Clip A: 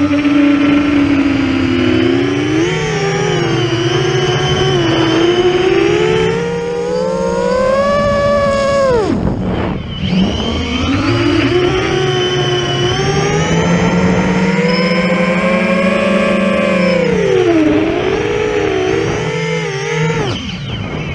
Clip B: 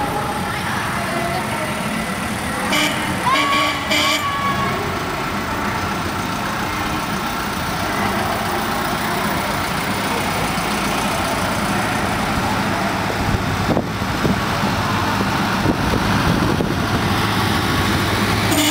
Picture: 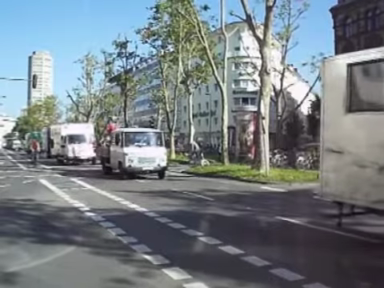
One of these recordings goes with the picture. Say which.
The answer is B